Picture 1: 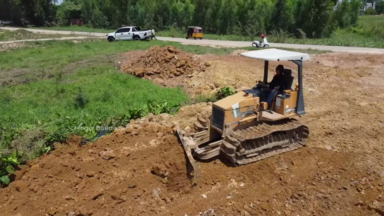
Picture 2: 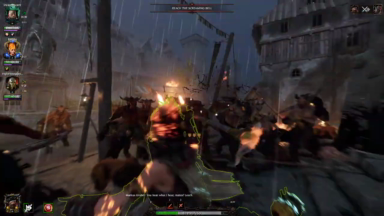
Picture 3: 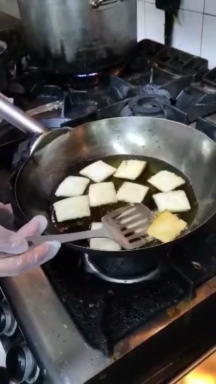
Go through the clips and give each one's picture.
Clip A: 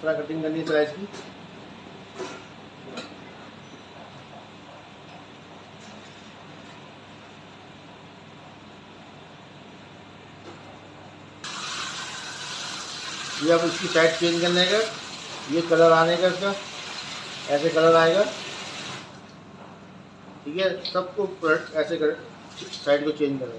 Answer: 3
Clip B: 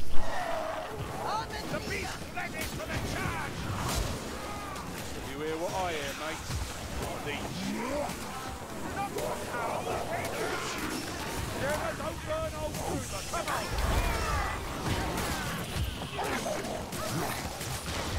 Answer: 2